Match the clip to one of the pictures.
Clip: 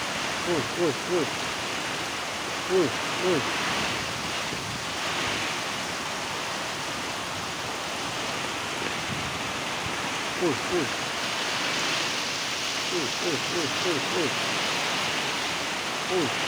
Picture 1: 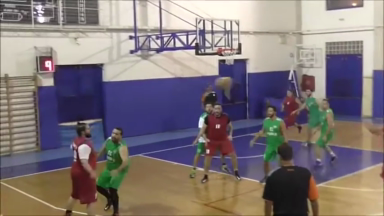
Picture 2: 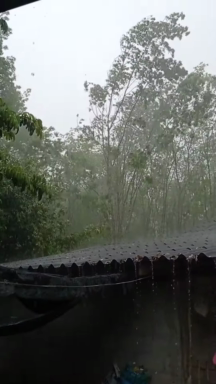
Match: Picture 2